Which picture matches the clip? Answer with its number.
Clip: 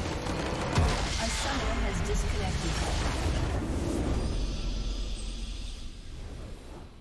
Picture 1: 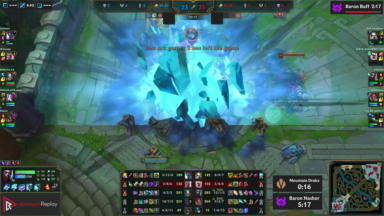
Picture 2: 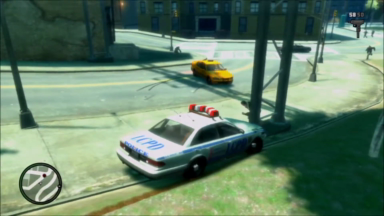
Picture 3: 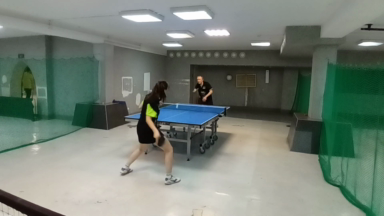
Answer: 1